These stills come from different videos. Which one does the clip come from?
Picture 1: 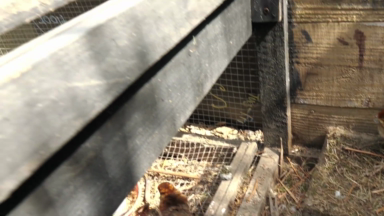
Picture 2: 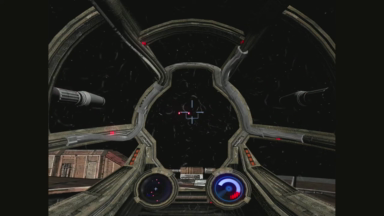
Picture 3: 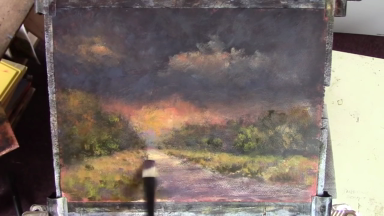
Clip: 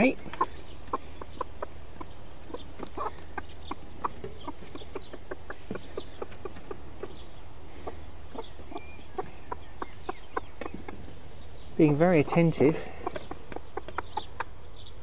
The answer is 1